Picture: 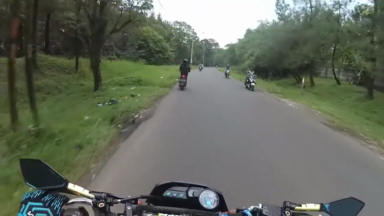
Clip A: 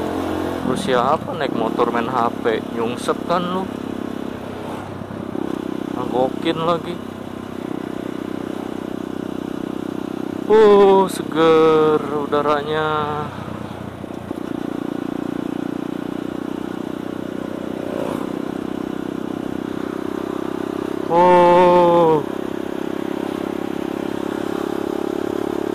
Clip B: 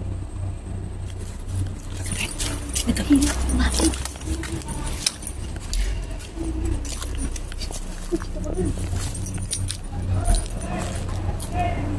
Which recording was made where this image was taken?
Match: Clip A